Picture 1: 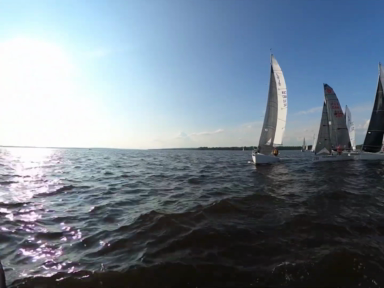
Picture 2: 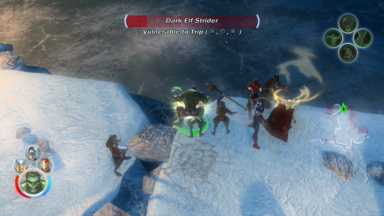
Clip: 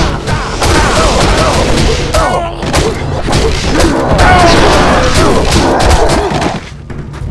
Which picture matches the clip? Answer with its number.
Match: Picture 2